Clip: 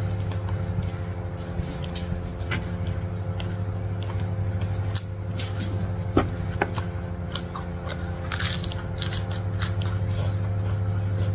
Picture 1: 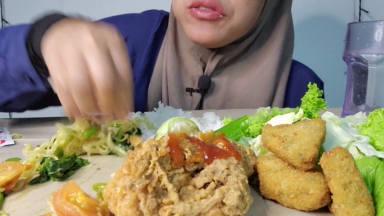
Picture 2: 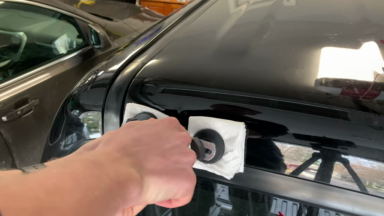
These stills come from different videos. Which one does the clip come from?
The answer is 1